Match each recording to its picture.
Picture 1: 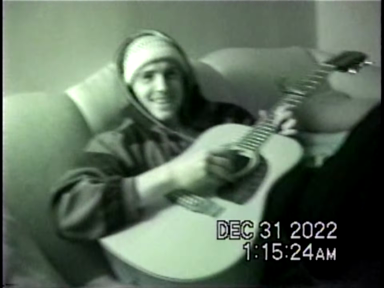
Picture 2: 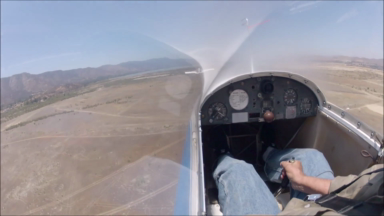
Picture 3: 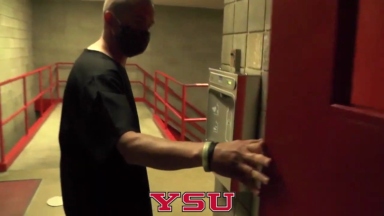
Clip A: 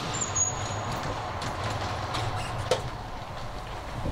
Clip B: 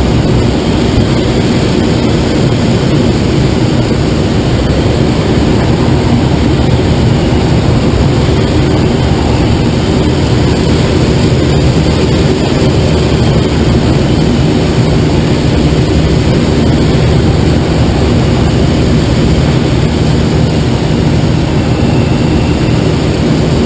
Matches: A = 3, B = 2